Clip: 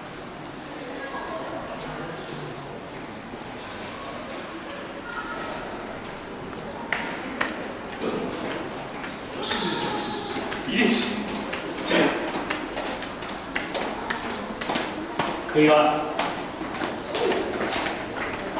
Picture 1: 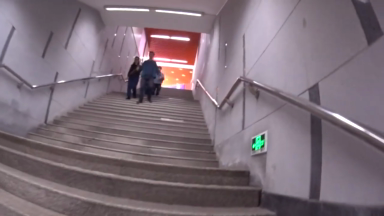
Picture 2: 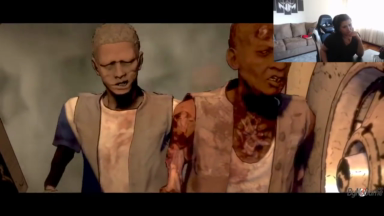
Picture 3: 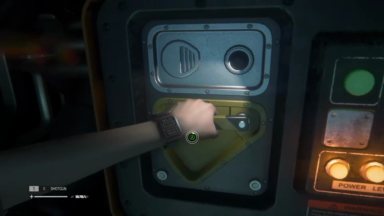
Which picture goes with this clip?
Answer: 1